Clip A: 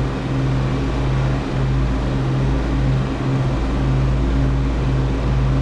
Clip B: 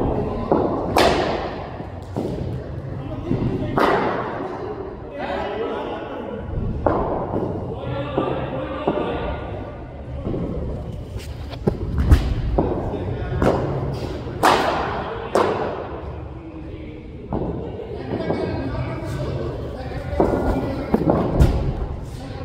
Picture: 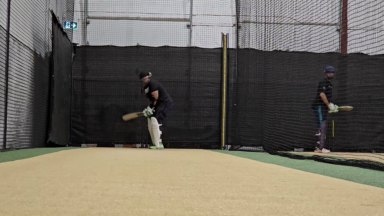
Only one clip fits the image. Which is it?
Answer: B